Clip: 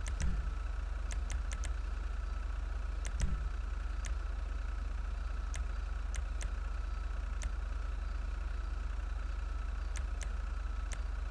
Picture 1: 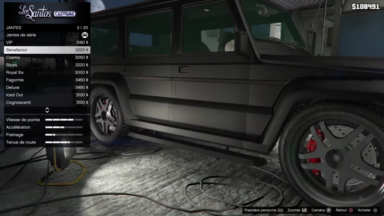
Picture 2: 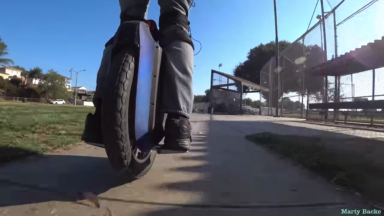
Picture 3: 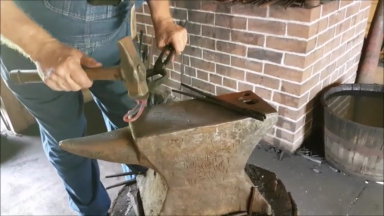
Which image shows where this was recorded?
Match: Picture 1